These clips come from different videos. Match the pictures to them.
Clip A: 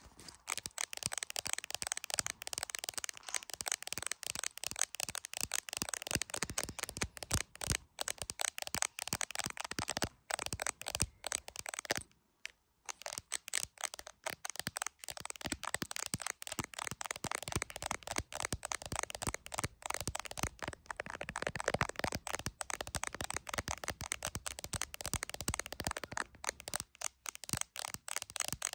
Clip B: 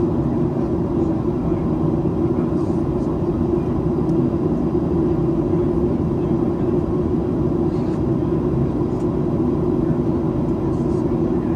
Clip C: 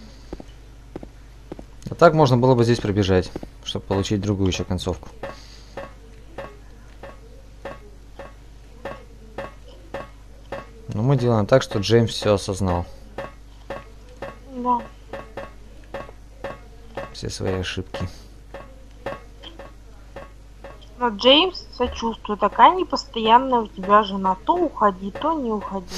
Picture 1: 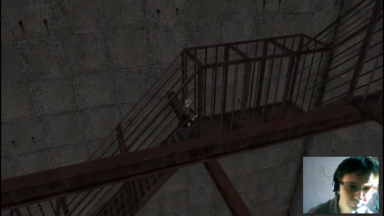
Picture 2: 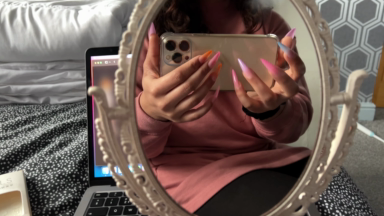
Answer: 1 C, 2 A